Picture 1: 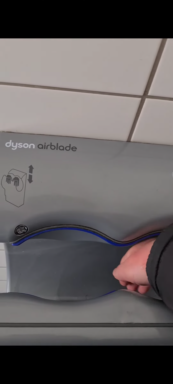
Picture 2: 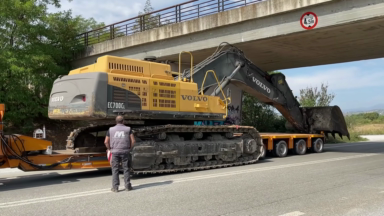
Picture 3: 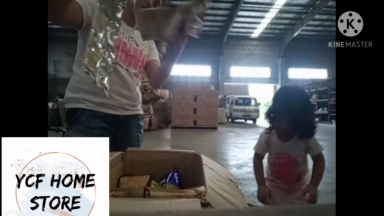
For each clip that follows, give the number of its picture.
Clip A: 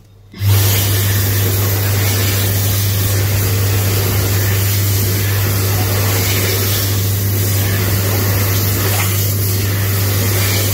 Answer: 1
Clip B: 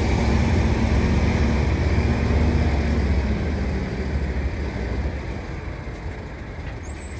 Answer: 2